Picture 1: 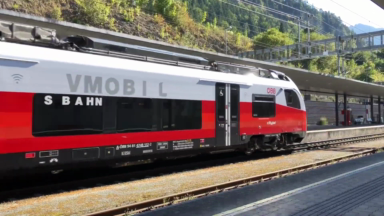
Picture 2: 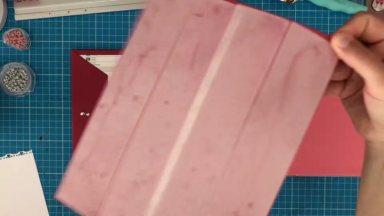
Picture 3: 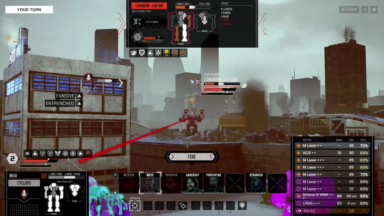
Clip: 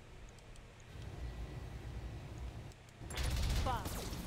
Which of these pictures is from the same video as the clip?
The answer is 3